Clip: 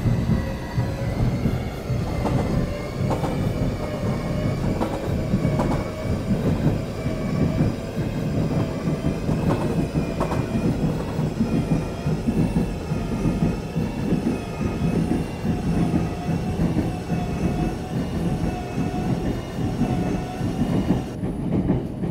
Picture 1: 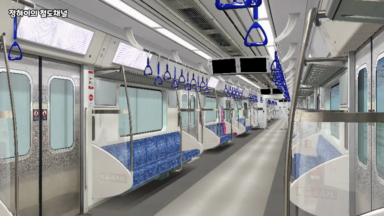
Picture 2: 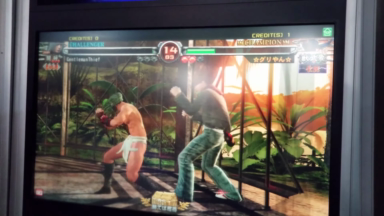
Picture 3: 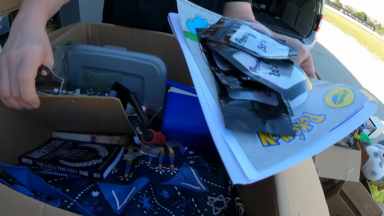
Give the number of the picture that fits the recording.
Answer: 1